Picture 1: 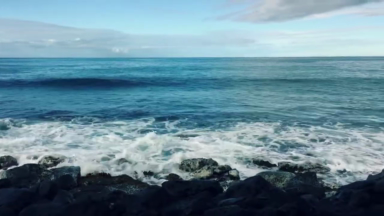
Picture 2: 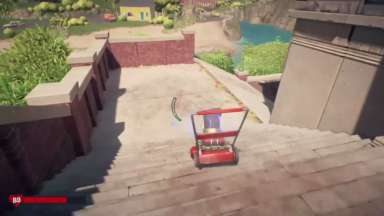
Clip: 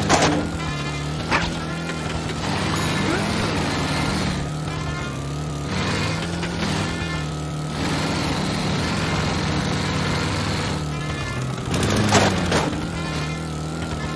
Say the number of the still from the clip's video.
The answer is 2